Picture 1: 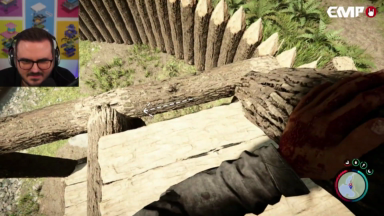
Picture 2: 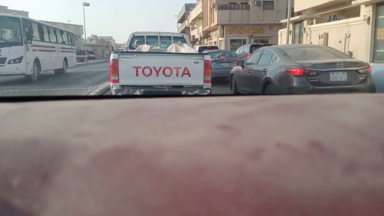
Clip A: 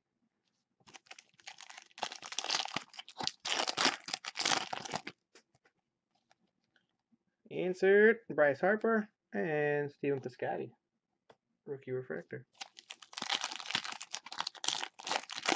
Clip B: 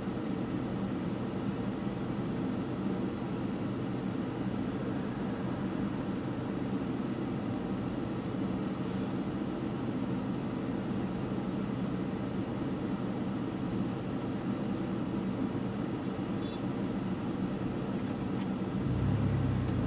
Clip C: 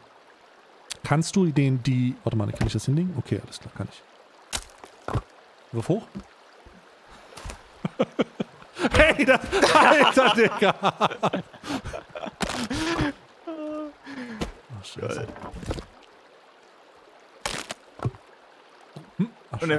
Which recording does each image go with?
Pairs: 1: C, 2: B